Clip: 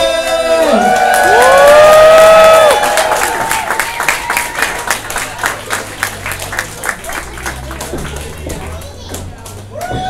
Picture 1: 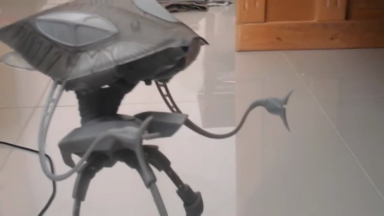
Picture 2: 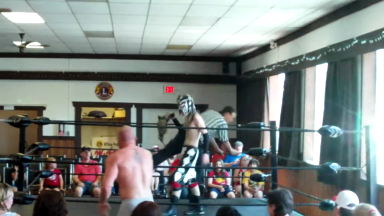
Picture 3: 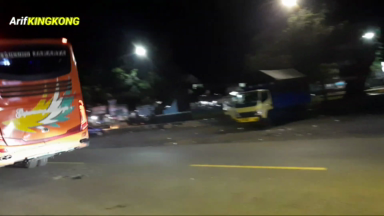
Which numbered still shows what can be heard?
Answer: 2